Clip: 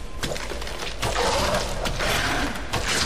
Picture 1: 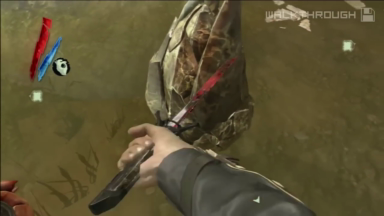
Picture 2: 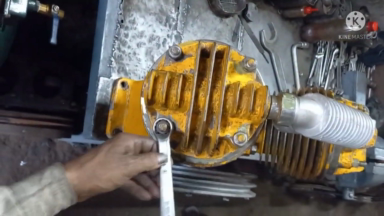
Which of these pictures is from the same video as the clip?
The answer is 1